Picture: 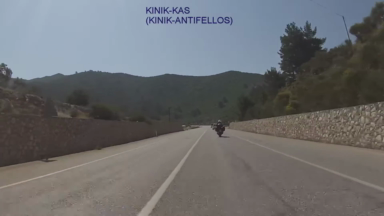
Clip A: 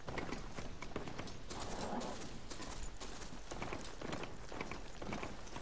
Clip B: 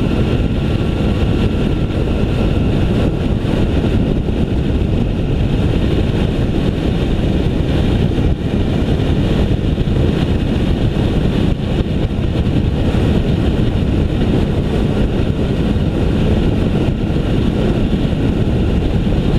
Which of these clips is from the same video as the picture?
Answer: B